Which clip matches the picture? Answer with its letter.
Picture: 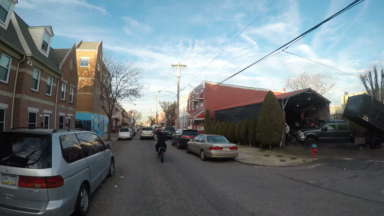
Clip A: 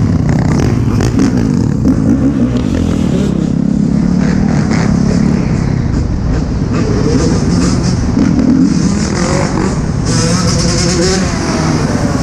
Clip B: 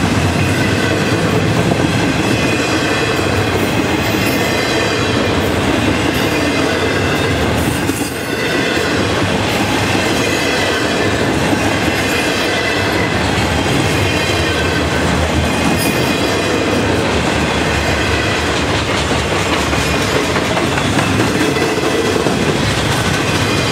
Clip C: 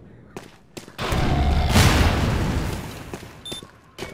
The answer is A